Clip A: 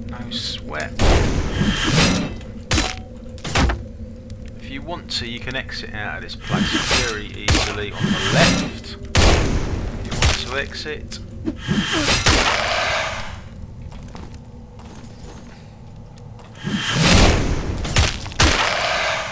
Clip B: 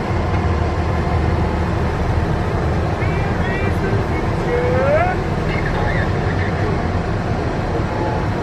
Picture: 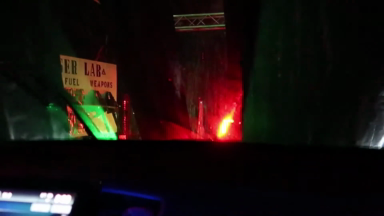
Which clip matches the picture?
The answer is B